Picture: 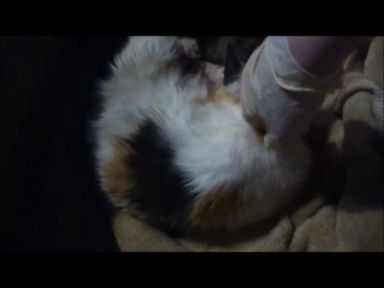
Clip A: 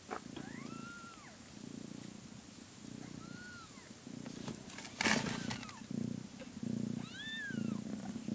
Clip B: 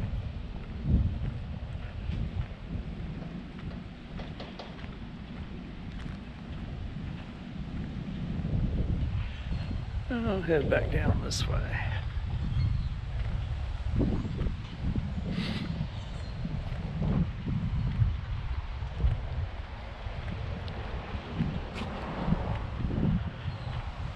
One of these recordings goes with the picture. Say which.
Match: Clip A